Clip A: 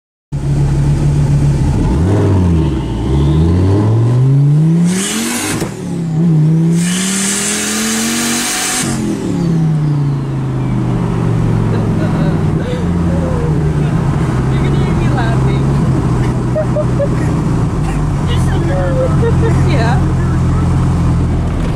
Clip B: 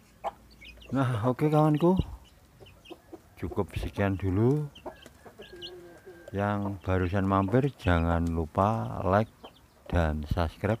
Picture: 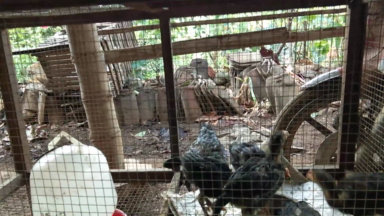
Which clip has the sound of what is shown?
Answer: B